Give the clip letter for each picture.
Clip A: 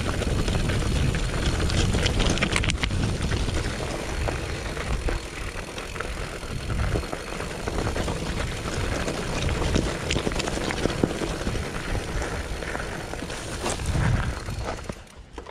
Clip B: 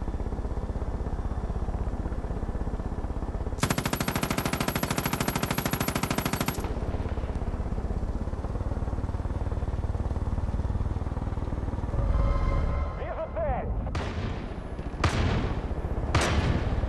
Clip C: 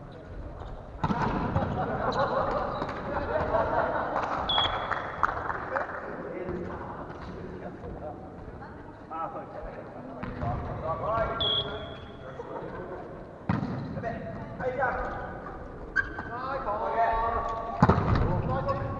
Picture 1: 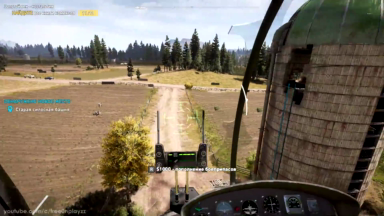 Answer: B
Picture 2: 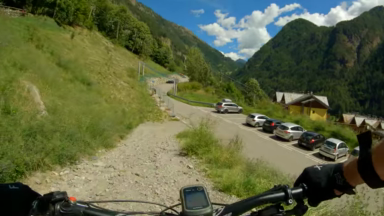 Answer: A